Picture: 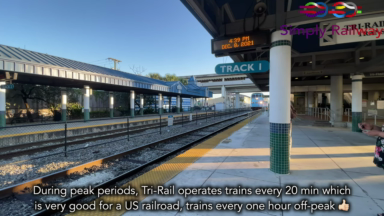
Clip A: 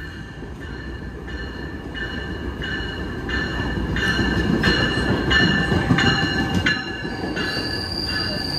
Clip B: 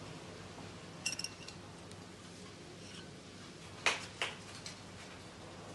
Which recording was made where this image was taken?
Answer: A